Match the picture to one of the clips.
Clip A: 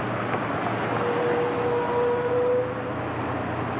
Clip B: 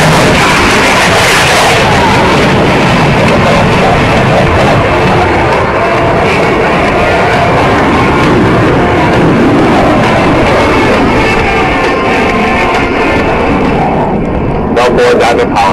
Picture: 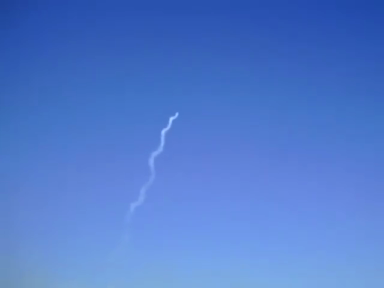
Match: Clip B